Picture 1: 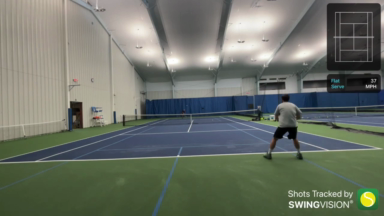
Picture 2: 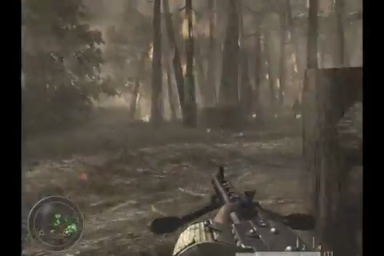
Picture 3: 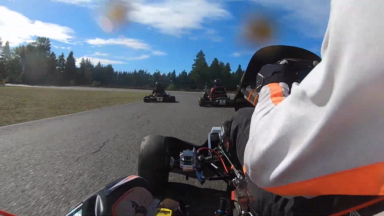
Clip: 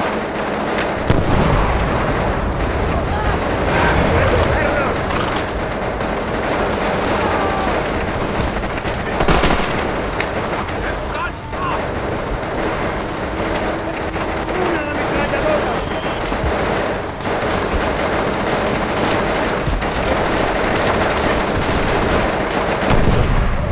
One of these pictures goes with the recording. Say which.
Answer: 2